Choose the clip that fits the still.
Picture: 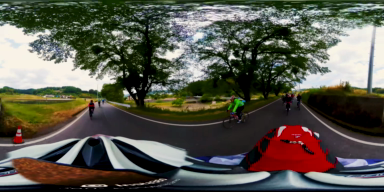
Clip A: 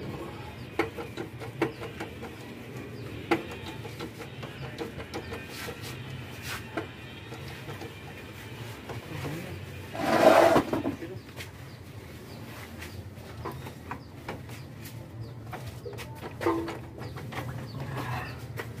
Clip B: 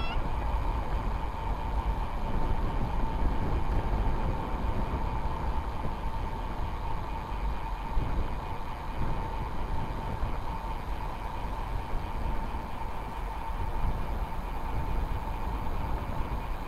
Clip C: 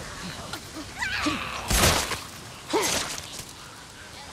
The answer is B